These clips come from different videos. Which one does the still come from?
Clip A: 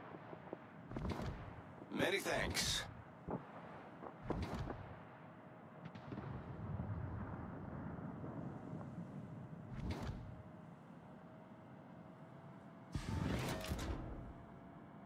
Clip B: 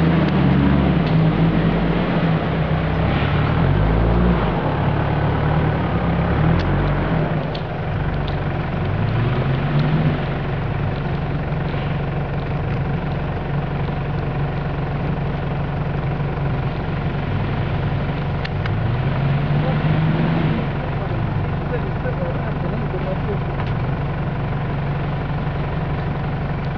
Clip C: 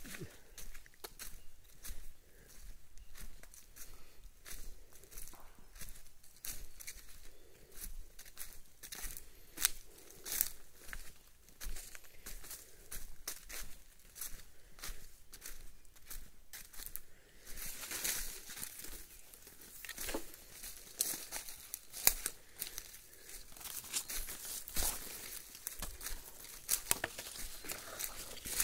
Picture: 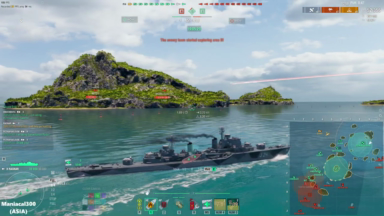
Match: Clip A